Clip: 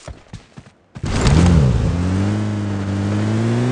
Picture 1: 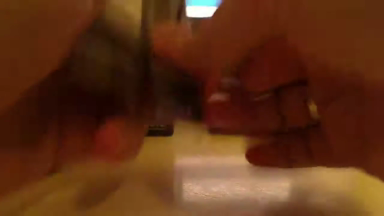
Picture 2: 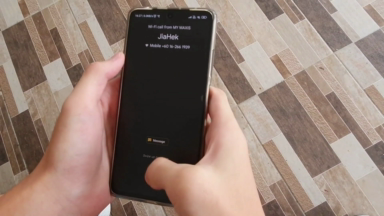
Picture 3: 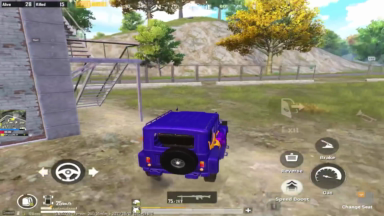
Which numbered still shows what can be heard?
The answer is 3